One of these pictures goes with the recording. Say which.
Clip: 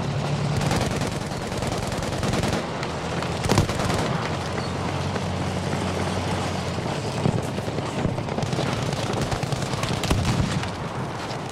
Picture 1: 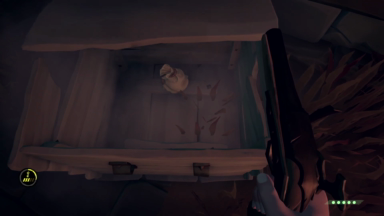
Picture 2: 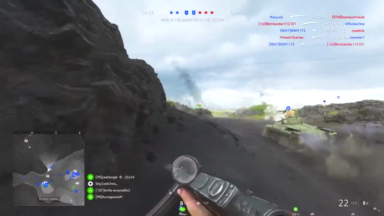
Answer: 2